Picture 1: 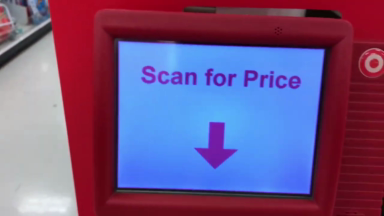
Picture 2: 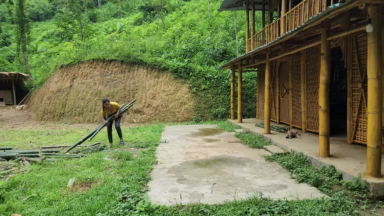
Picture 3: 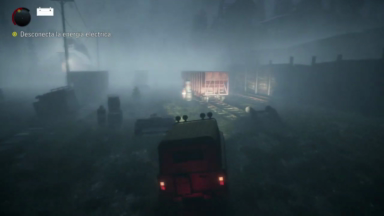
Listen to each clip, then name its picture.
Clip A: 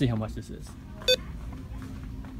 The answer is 1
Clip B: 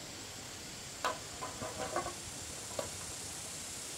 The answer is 2